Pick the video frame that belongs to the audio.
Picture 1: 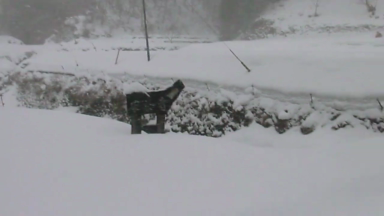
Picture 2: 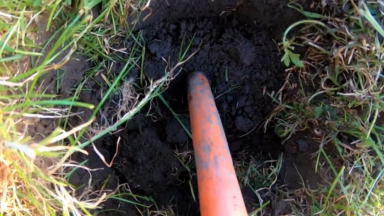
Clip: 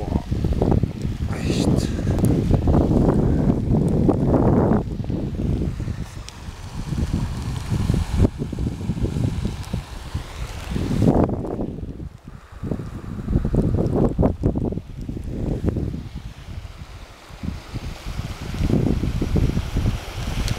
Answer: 1